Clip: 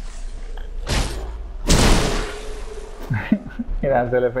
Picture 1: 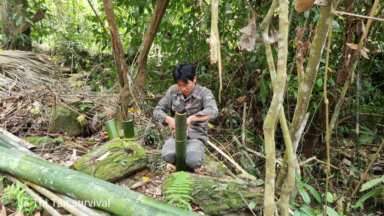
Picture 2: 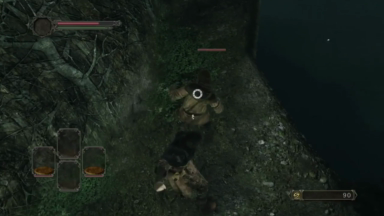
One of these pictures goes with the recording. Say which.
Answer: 2